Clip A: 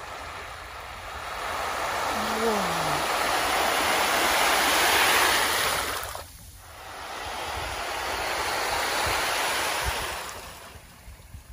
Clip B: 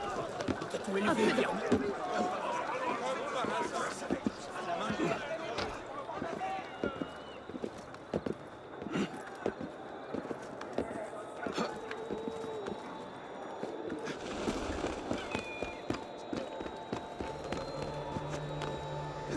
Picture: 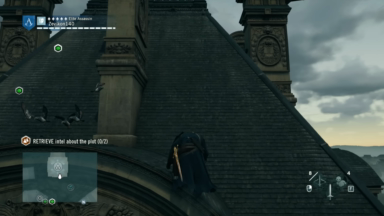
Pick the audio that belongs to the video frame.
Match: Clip B